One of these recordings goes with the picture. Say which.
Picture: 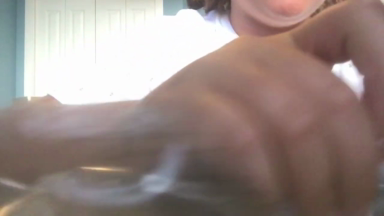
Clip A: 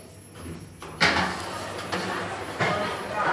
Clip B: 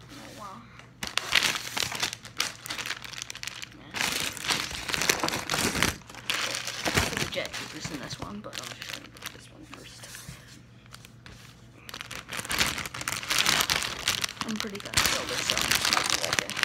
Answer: B